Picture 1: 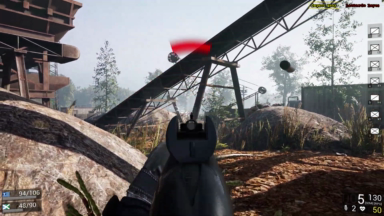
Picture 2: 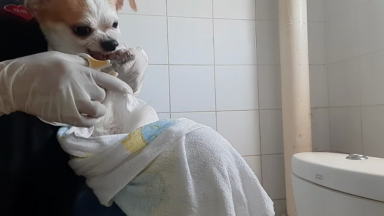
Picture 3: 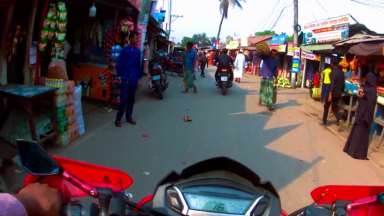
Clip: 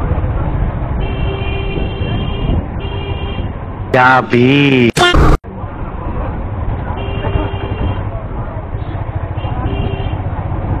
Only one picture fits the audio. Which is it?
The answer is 3